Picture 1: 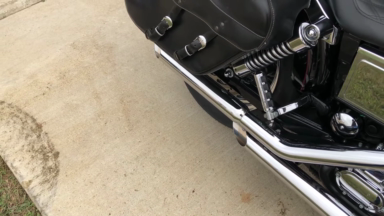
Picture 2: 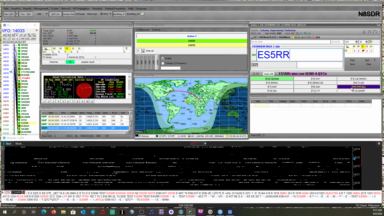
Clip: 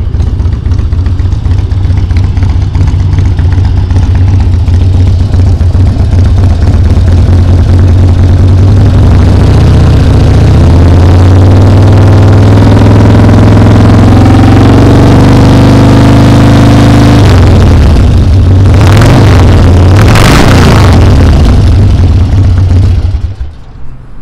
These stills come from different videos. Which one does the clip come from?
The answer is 1